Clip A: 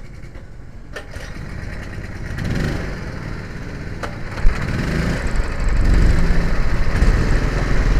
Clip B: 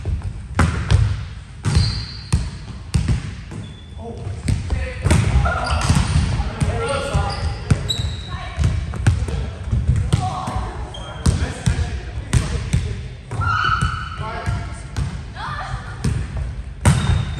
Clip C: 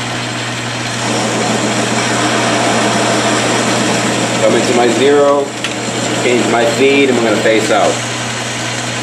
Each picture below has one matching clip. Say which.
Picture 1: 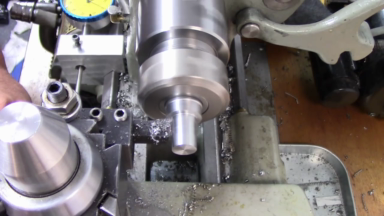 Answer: C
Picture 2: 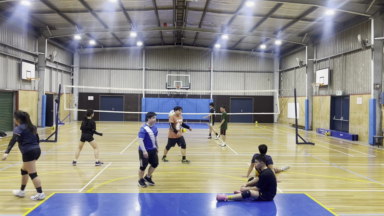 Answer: B